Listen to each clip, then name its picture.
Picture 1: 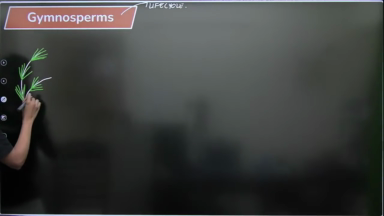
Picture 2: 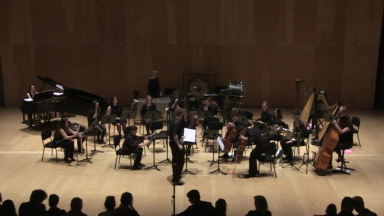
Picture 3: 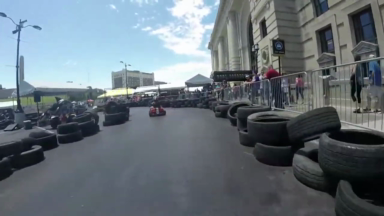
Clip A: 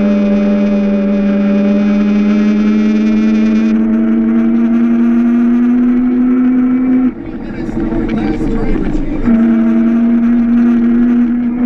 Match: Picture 3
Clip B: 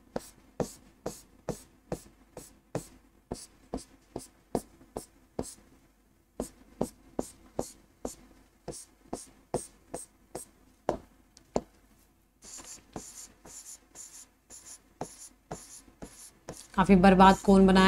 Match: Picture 1